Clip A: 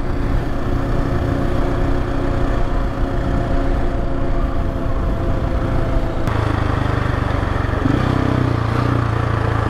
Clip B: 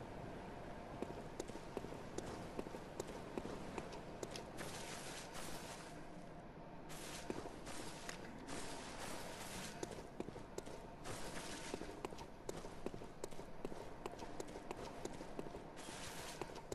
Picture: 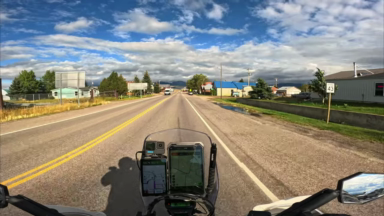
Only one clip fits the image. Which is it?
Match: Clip A